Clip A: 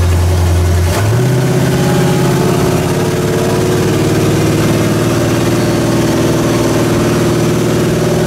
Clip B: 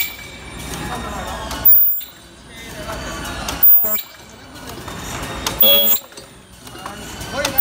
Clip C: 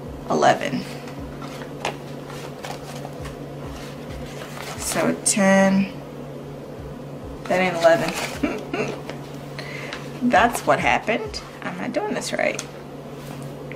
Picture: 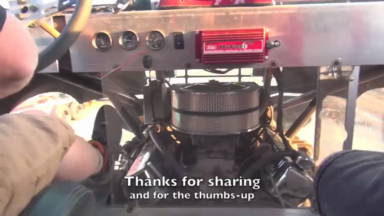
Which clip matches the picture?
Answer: A